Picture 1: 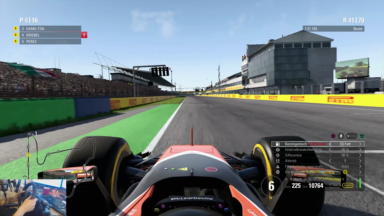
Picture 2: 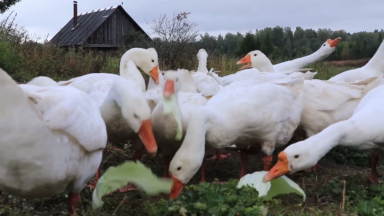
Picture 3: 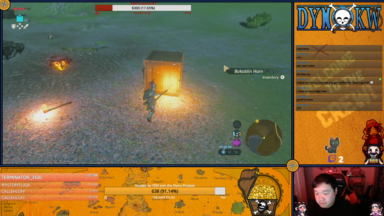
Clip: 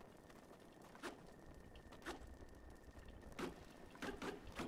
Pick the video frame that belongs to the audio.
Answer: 3